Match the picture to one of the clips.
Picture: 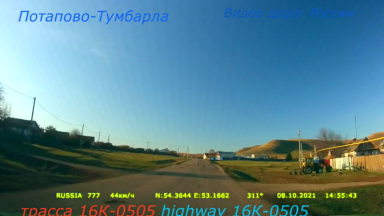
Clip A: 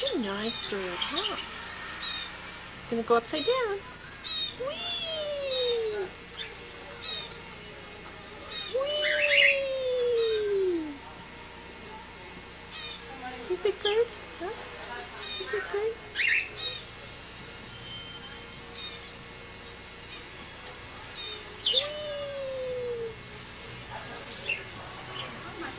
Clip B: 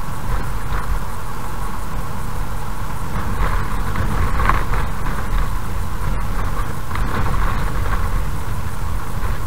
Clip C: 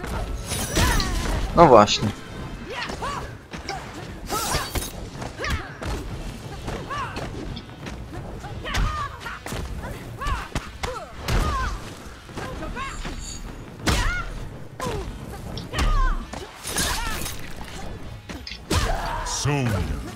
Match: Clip B